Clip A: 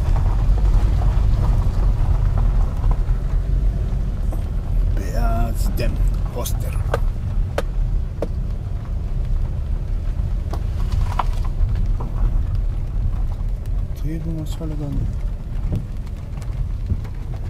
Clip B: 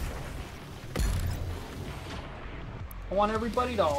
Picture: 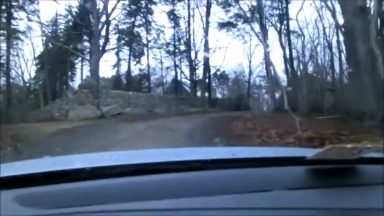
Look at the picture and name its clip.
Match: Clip A